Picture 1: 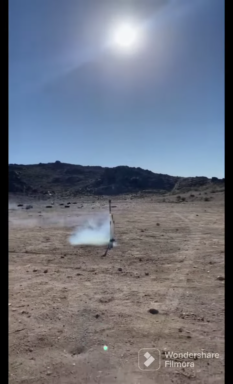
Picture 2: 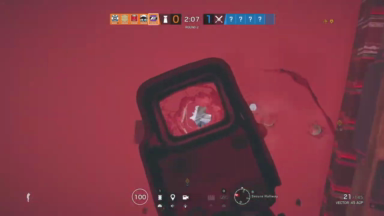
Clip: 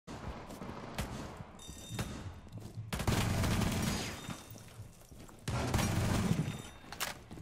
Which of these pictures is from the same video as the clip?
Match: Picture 2